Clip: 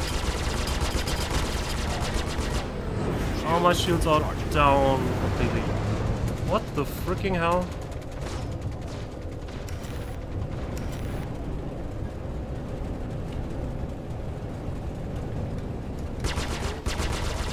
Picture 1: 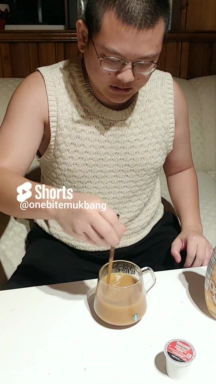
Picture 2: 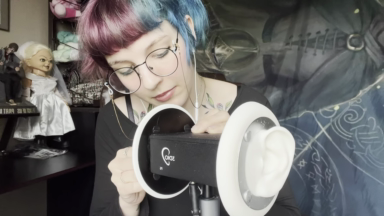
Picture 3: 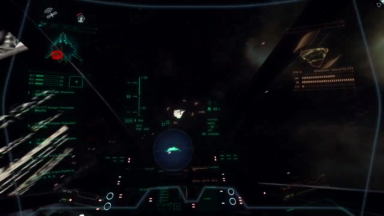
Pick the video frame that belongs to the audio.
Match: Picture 3